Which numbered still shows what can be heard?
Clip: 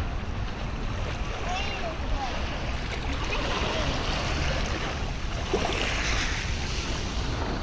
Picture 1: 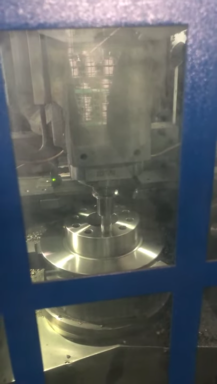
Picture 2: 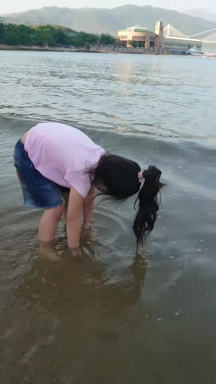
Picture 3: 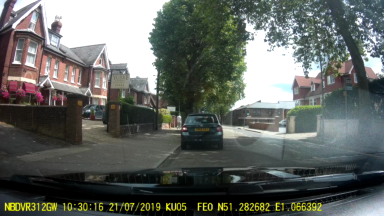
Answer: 2